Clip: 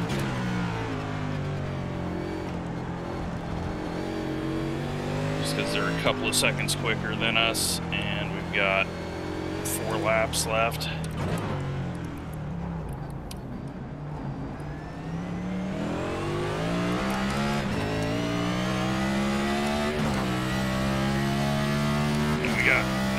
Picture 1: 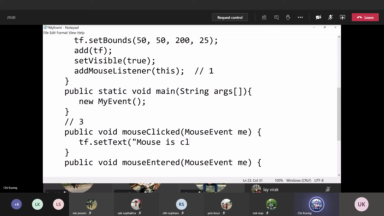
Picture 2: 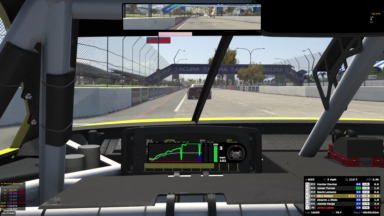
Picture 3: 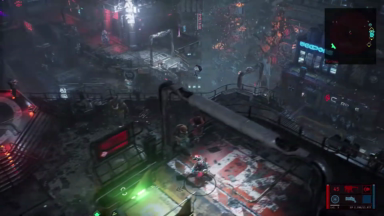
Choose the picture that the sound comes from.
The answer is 2